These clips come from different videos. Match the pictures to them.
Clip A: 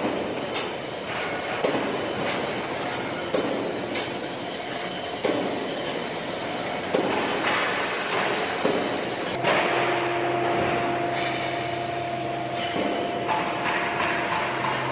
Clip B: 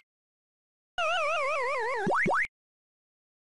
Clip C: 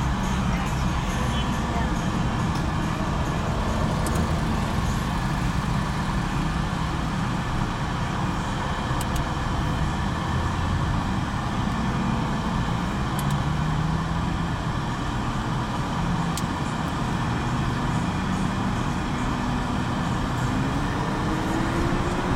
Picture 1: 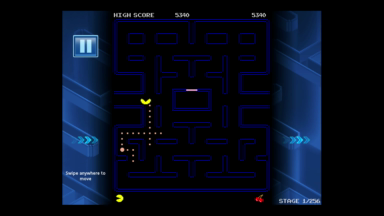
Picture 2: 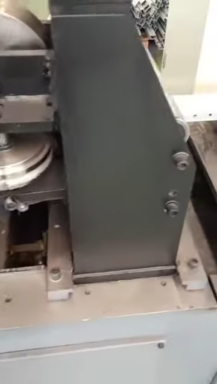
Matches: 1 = B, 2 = A